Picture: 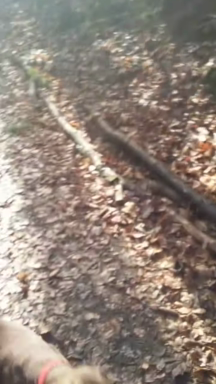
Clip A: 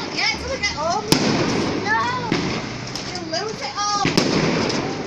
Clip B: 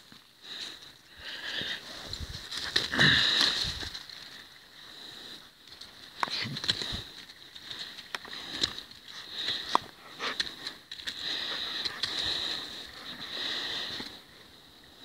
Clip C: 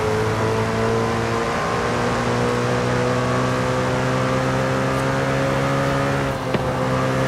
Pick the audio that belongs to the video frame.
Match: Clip B